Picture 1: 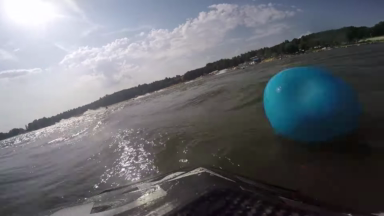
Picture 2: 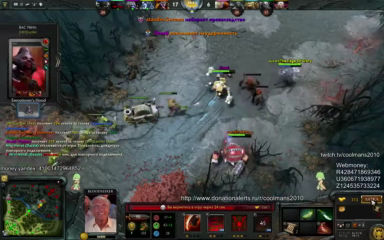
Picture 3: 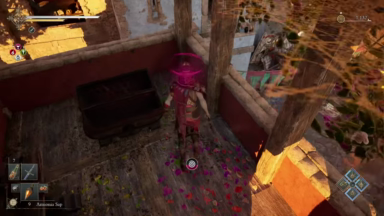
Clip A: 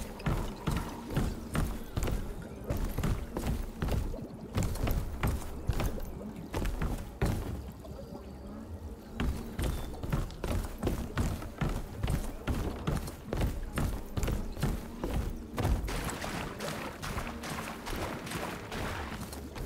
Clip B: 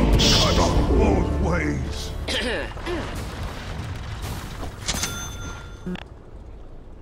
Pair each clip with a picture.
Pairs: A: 3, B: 2